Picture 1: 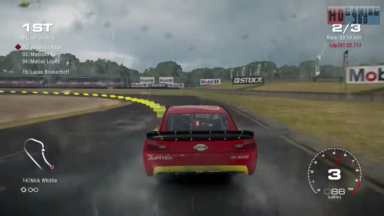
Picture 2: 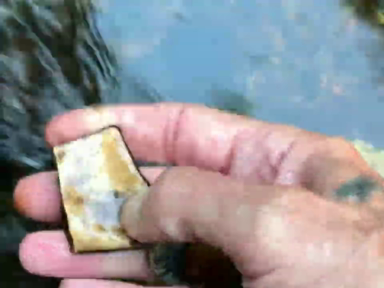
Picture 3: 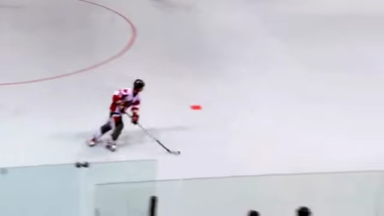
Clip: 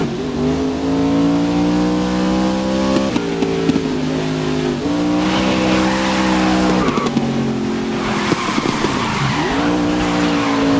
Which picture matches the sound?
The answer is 1